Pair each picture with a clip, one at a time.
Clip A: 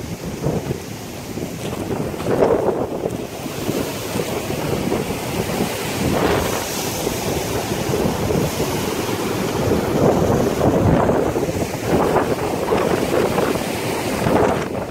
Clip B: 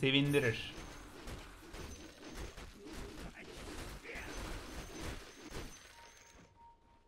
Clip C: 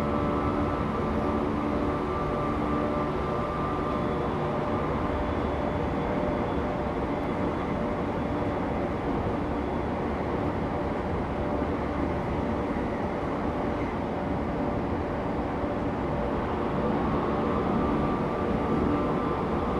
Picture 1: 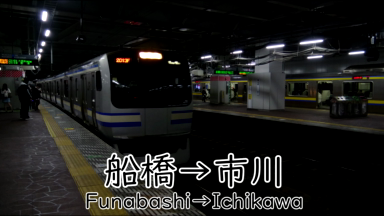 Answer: C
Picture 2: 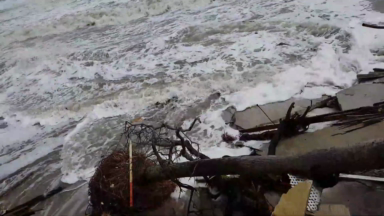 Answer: A